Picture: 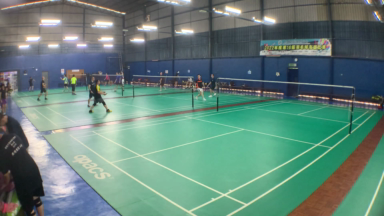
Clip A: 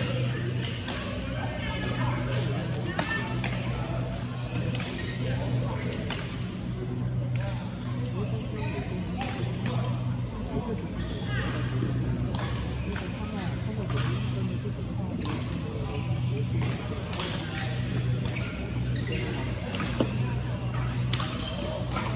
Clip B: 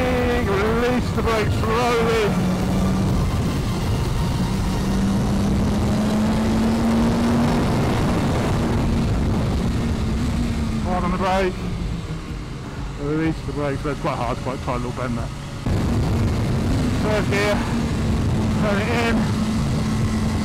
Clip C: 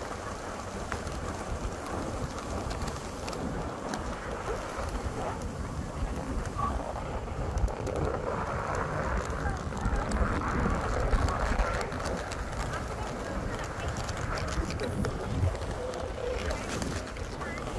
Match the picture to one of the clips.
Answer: A